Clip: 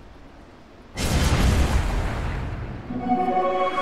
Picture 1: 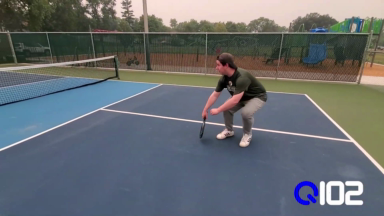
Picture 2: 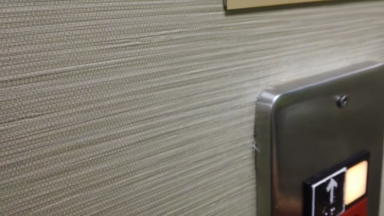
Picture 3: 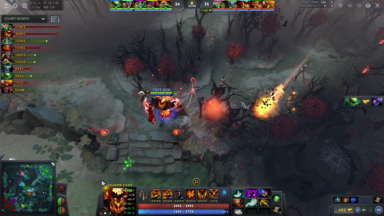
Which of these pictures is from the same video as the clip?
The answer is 3